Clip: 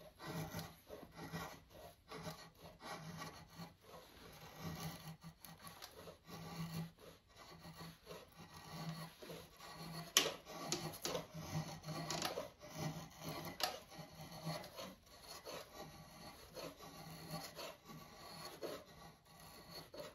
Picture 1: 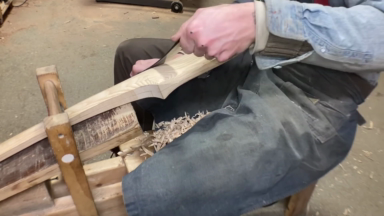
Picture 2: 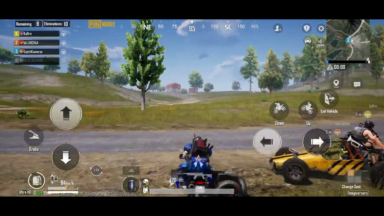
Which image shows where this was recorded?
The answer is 1